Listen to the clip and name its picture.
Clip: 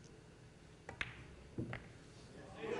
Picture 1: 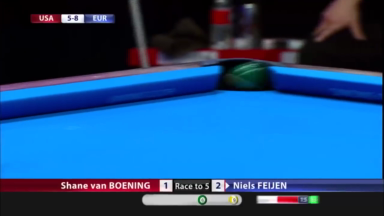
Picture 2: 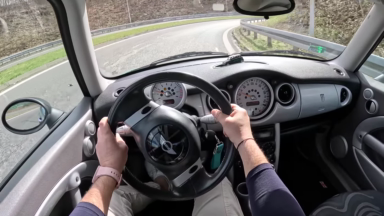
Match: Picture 1